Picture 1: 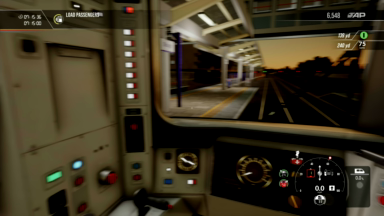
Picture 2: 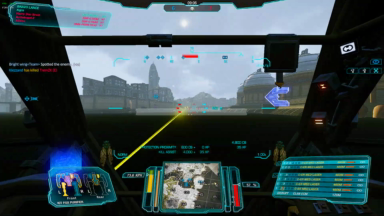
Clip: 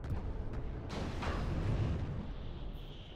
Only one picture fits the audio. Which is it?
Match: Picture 2